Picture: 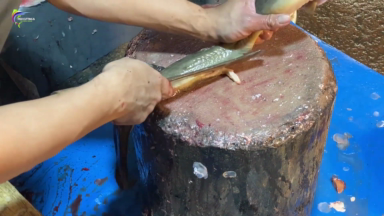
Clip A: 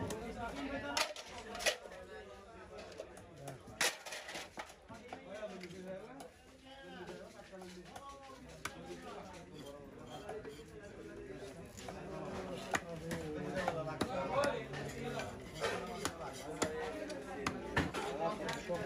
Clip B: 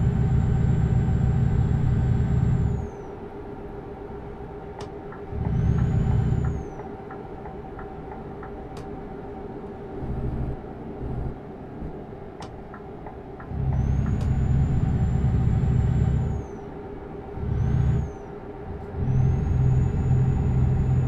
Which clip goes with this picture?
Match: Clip A